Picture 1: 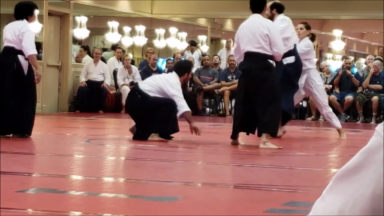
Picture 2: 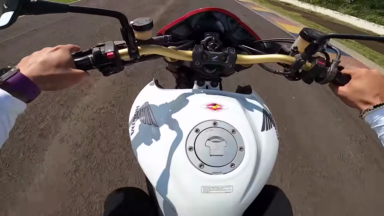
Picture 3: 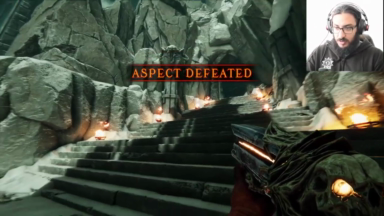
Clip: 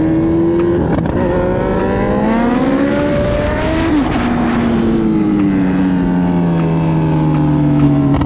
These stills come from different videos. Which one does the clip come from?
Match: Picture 2